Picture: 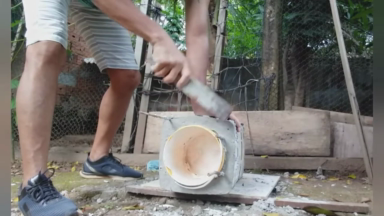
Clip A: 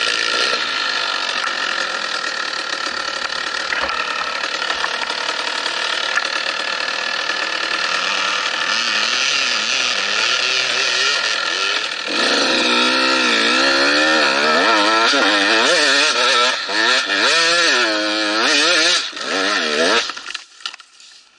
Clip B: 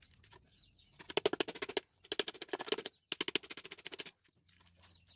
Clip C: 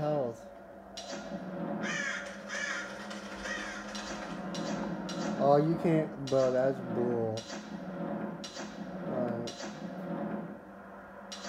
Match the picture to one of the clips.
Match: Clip B